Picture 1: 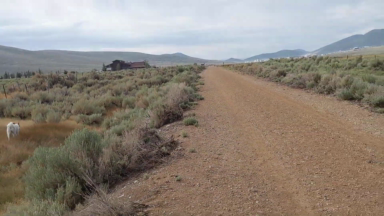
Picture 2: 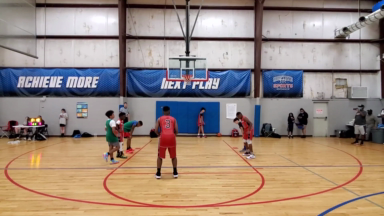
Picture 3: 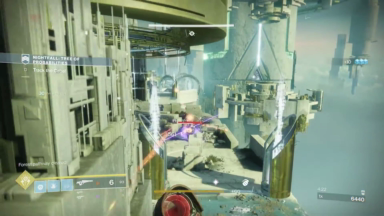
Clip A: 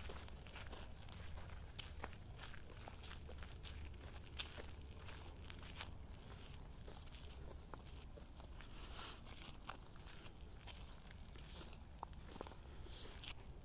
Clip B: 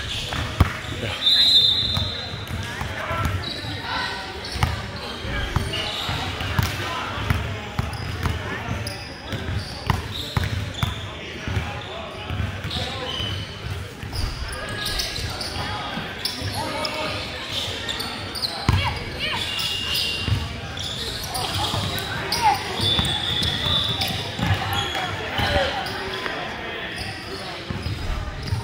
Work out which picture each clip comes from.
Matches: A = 1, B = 2